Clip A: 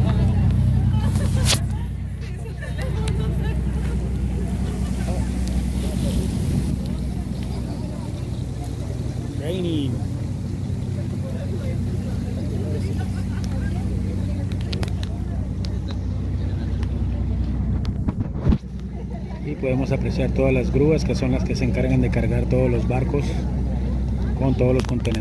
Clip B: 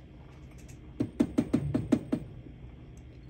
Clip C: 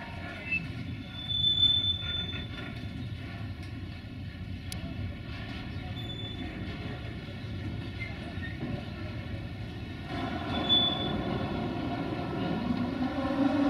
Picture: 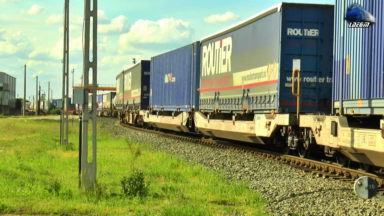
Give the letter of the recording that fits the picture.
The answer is C